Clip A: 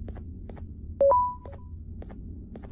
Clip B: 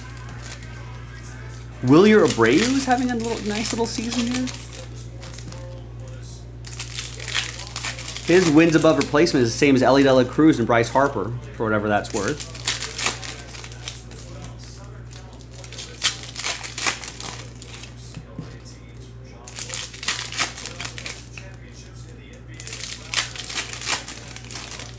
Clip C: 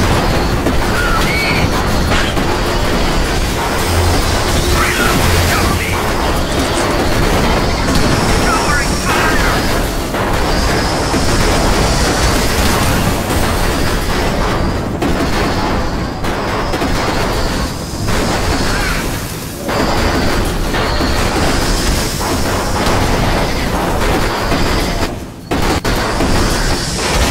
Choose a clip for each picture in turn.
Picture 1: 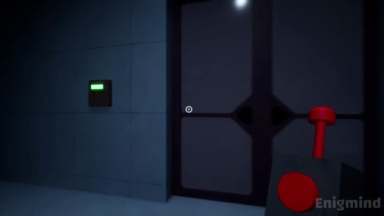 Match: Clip A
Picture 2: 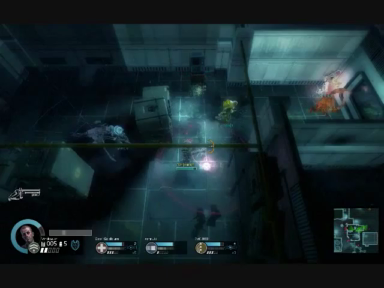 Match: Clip C